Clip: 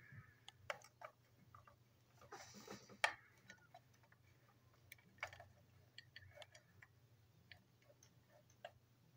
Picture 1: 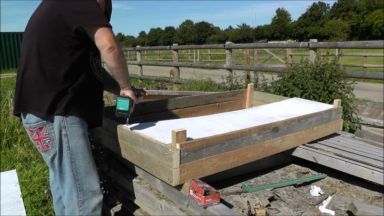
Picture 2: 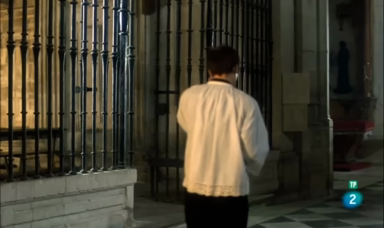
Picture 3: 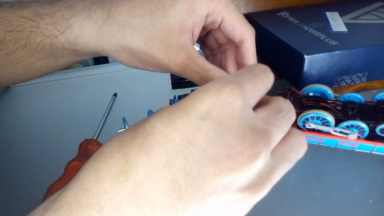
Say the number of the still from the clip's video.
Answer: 3